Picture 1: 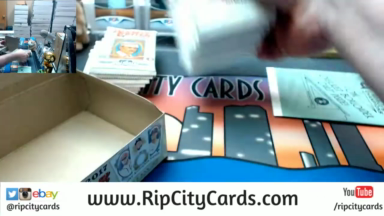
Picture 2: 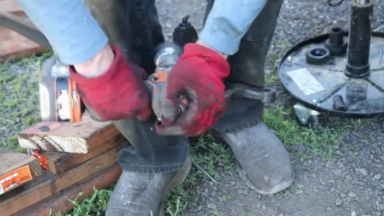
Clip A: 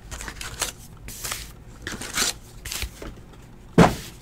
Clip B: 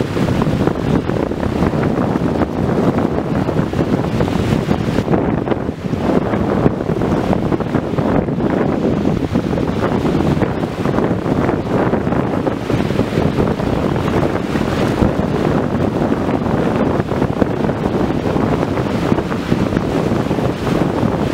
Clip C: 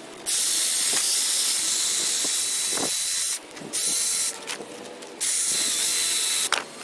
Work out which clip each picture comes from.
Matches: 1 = A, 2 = C